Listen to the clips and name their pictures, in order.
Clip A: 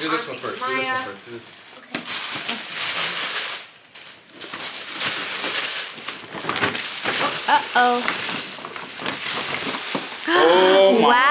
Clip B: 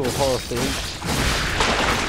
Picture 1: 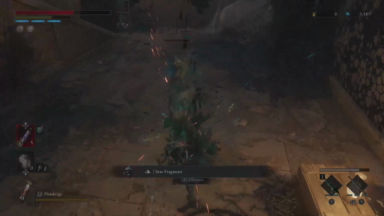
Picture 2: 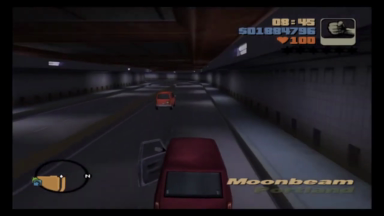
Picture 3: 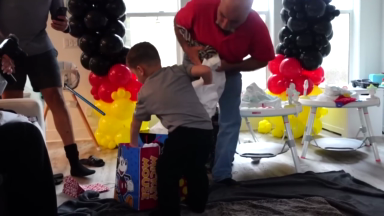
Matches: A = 3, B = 1